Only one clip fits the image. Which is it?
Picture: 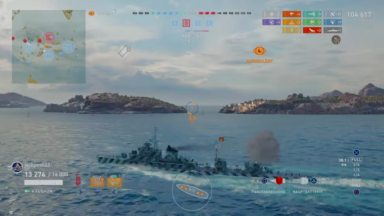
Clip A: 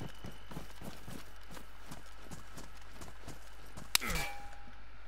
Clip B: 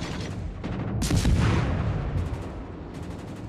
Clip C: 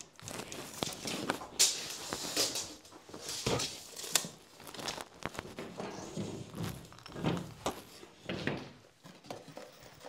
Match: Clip B